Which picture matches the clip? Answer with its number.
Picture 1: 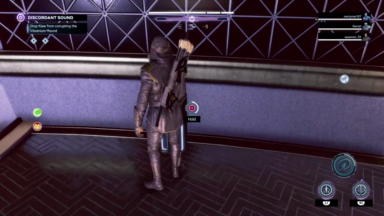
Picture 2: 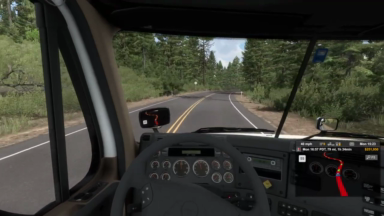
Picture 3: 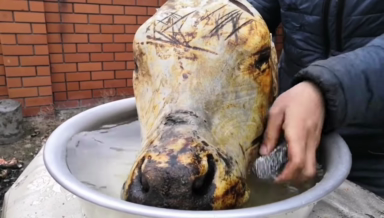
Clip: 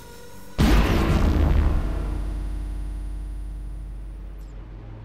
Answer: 1